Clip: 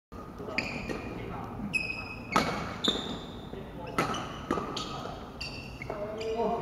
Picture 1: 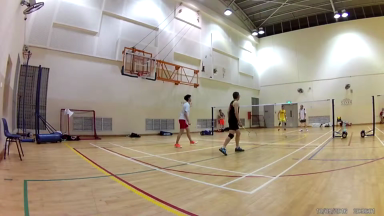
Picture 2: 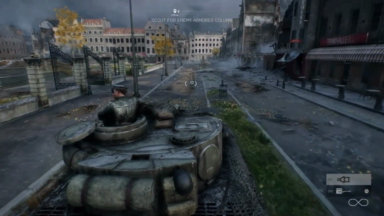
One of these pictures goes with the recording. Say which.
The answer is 1